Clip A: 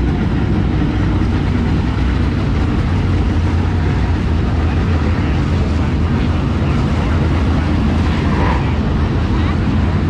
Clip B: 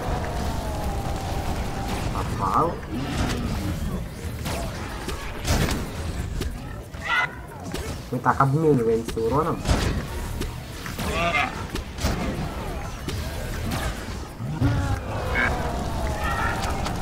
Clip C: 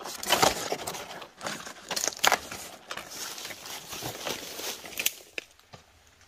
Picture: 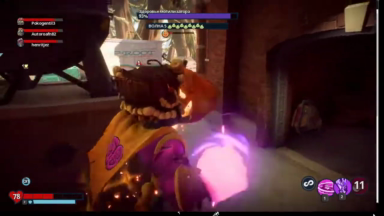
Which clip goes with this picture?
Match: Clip B